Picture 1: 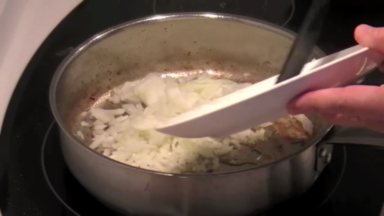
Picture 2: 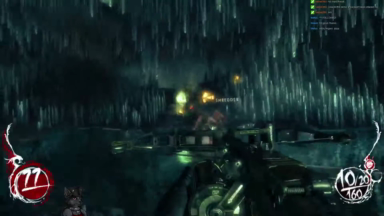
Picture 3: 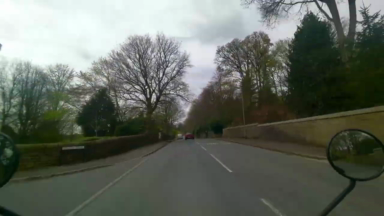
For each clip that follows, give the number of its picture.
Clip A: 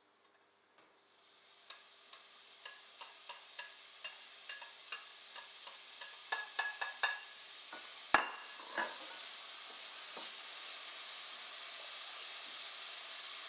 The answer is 1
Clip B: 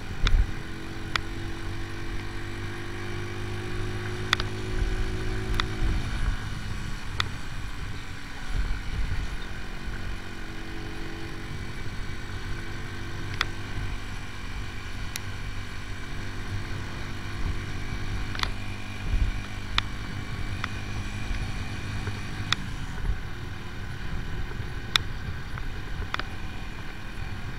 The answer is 3